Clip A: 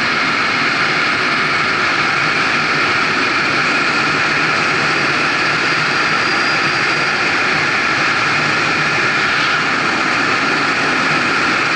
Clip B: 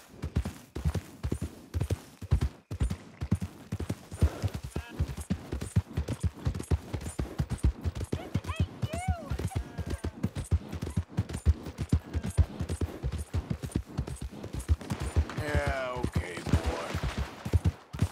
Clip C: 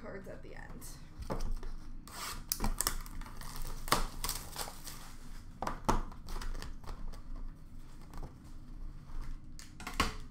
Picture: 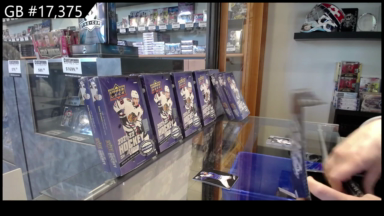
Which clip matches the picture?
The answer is C